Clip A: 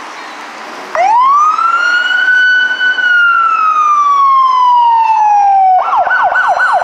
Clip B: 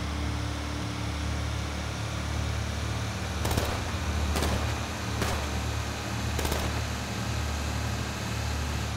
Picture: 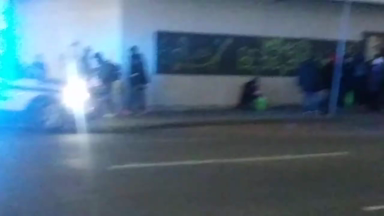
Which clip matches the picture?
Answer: A